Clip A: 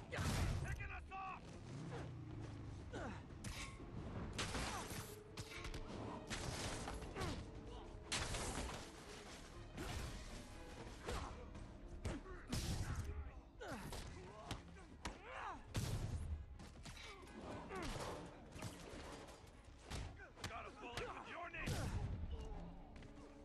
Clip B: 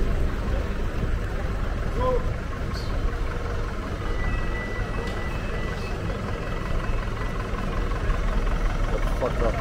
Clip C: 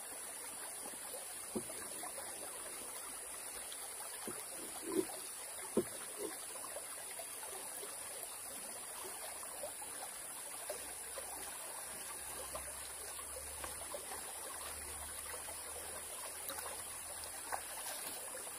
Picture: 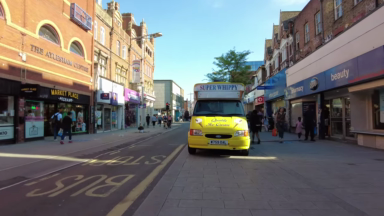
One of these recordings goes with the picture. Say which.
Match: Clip B